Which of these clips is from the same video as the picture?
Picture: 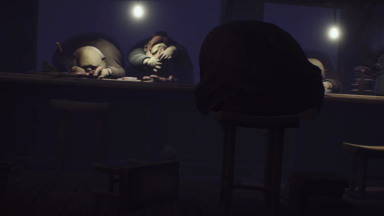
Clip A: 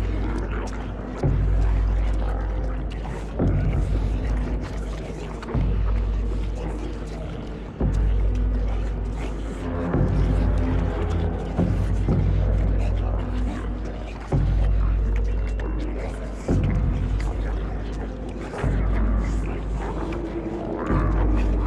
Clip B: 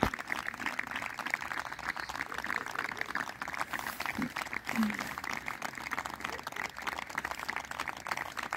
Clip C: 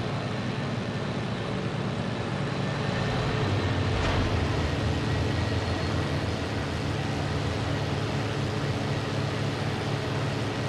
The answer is A